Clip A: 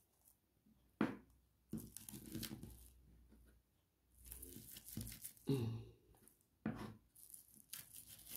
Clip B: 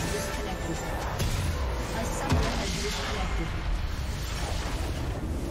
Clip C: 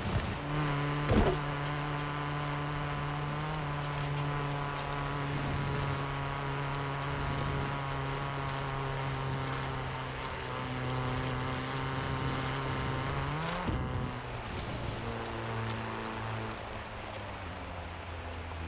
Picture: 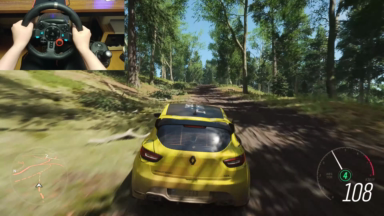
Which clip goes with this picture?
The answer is C